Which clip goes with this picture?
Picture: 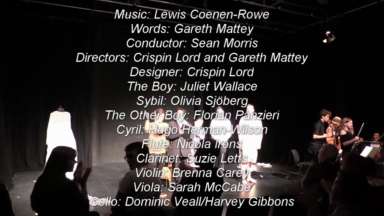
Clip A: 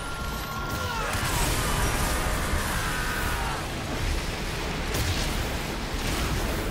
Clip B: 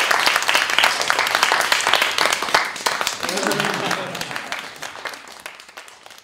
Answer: B